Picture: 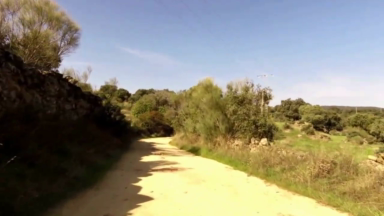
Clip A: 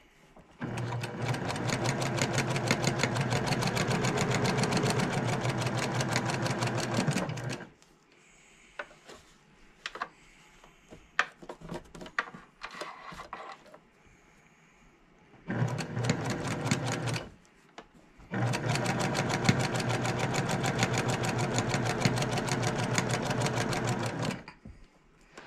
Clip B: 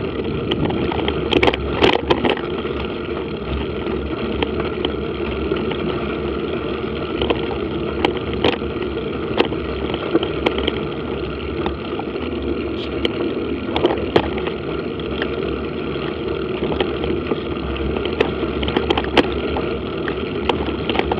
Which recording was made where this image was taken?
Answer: B